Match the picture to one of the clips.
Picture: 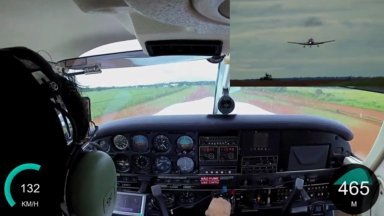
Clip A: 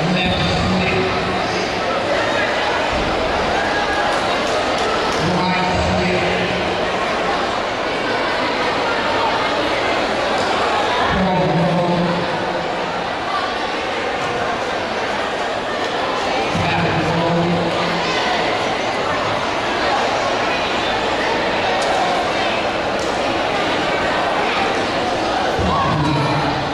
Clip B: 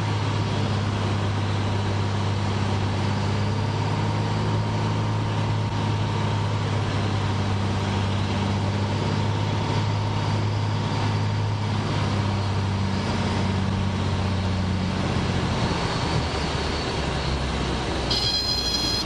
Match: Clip B